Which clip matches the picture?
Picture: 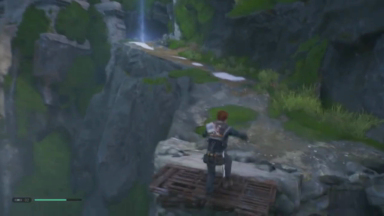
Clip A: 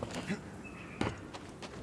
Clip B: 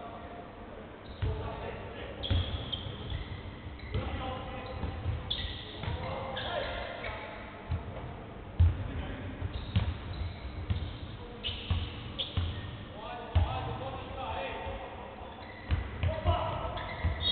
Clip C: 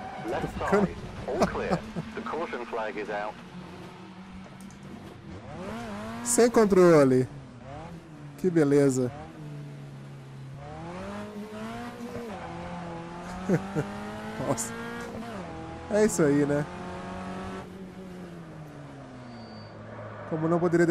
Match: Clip A